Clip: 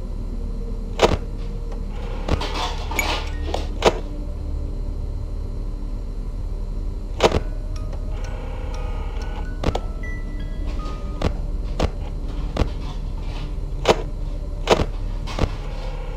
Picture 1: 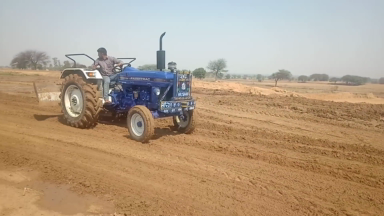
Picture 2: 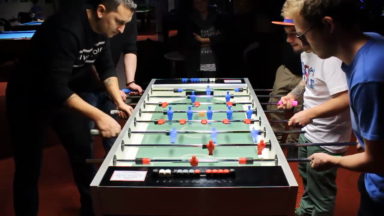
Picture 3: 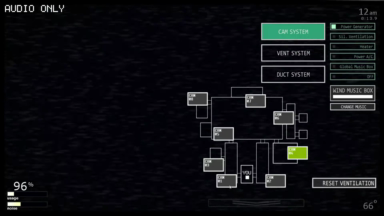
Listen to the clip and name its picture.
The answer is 3